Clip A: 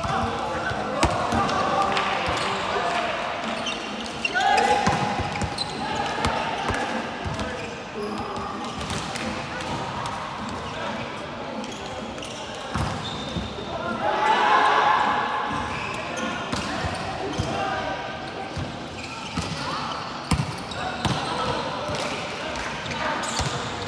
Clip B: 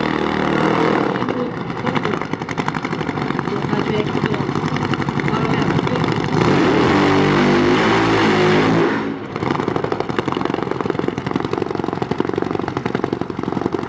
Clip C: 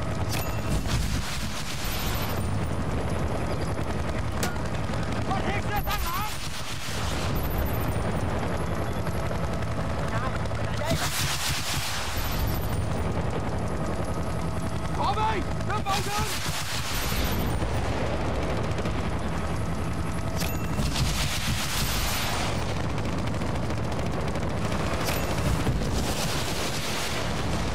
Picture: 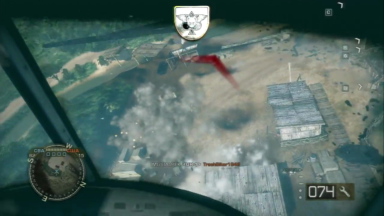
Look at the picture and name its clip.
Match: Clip C